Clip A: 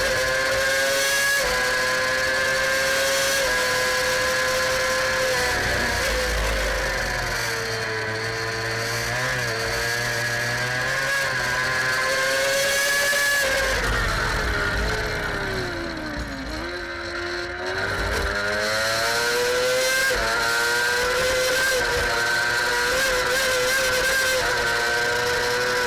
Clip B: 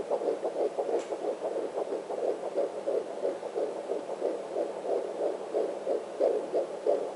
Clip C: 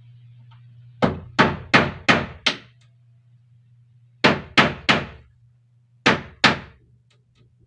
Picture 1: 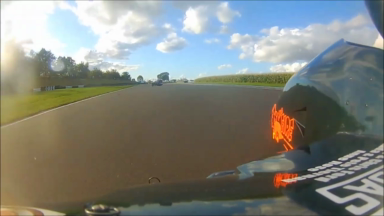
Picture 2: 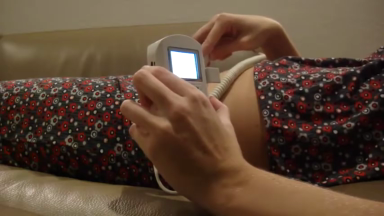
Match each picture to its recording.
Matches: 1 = A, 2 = B